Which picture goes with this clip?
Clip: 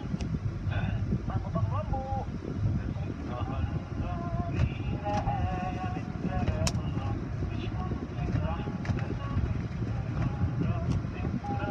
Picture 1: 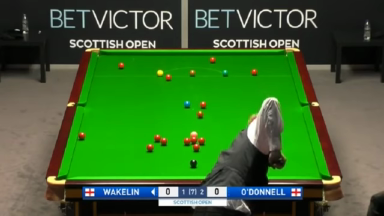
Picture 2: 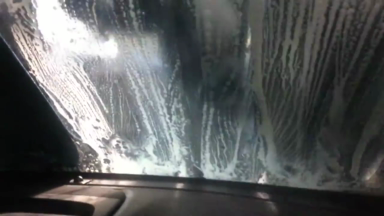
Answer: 2